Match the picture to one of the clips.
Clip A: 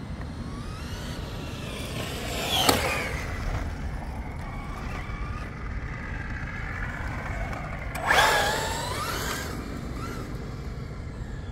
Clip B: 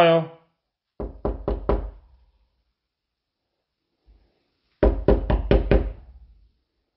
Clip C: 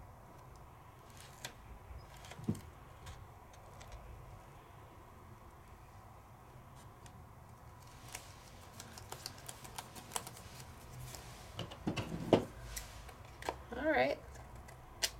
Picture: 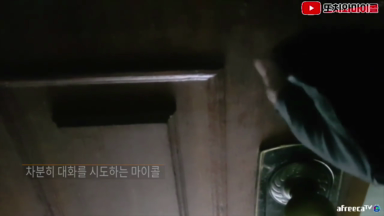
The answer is B